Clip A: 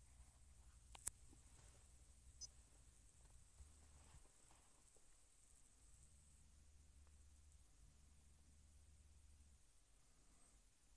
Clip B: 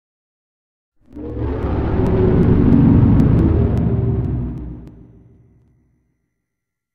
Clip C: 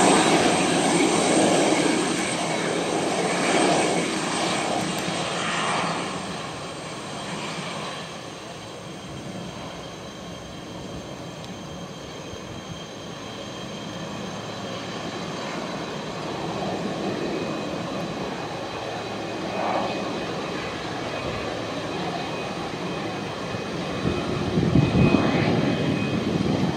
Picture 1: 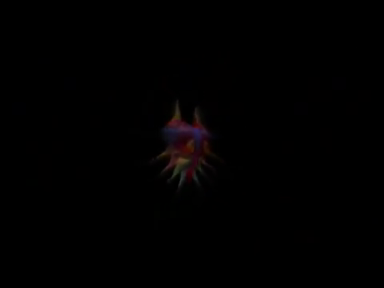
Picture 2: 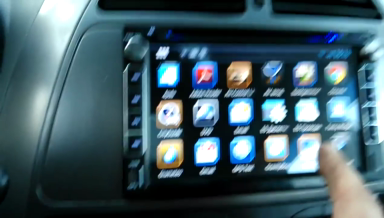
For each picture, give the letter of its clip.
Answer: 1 B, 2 A